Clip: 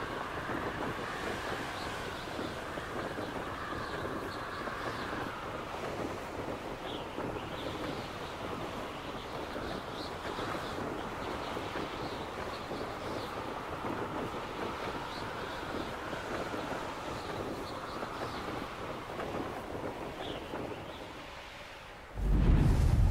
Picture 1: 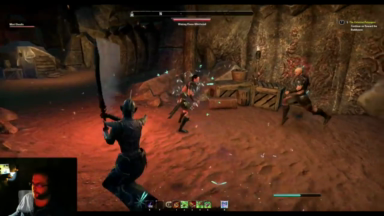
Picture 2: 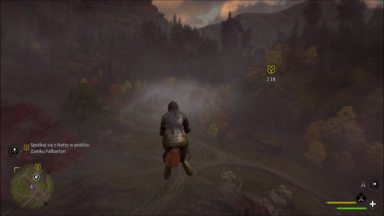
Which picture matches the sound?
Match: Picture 2